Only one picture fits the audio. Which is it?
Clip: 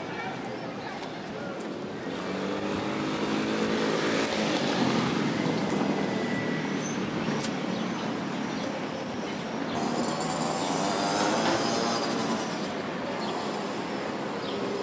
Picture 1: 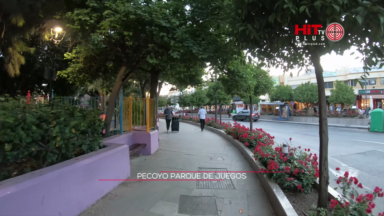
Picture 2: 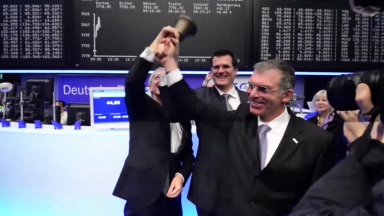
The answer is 1